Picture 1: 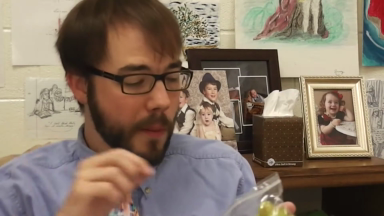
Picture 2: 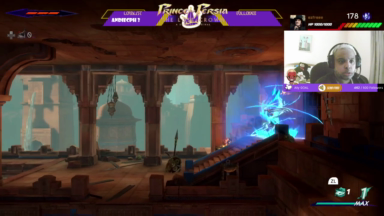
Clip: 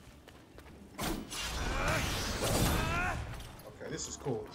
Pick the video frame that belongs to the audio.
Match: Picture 2